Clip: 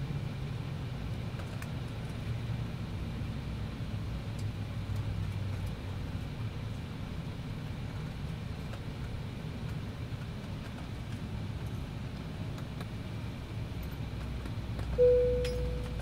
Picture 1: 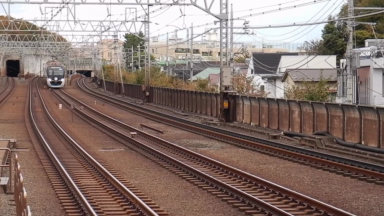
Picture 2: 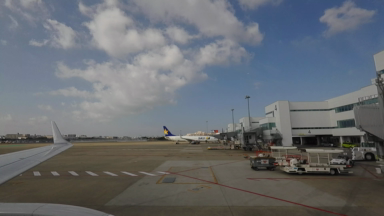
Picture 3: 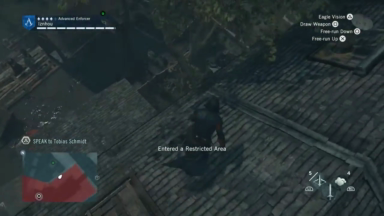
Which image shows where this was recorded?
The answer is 2